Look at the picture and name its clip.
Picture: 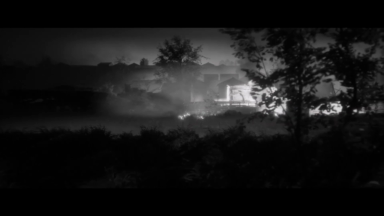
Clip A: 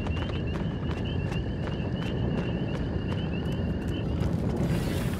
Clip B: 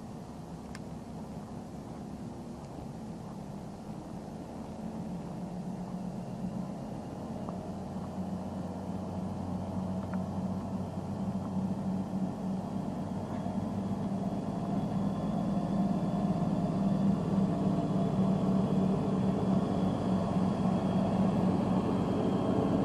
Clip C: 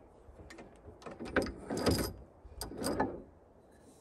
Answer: A